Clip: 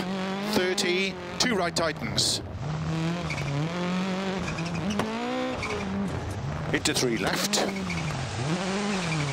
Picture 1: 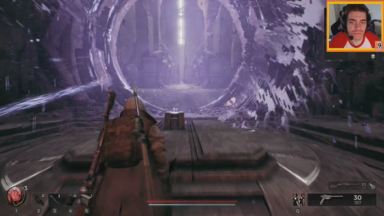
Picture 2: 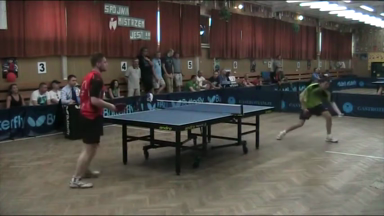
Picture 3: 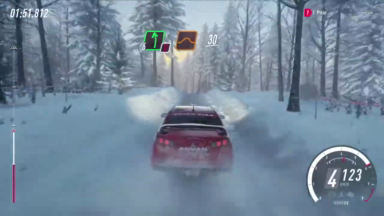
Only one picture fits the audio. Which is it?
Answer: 3